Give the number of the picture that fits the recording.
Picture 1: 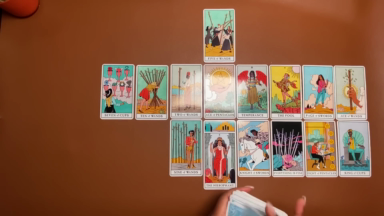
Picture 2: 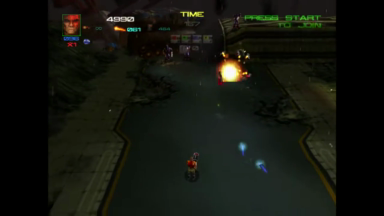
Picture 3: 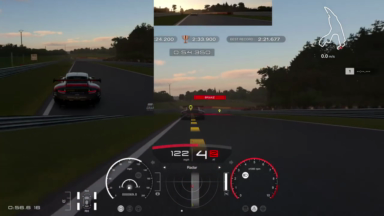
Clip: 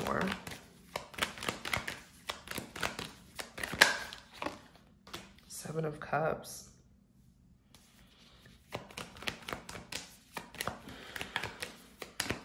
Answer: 1